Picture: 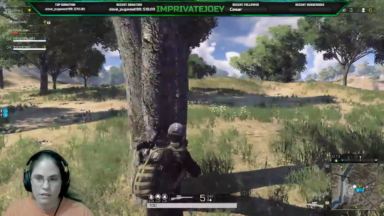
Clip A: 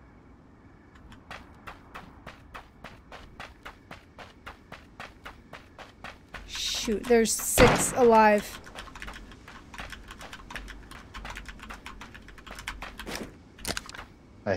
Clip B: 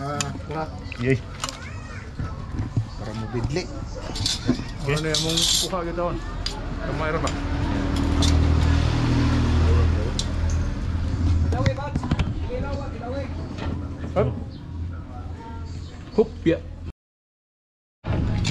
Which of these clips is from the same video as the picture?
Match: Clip A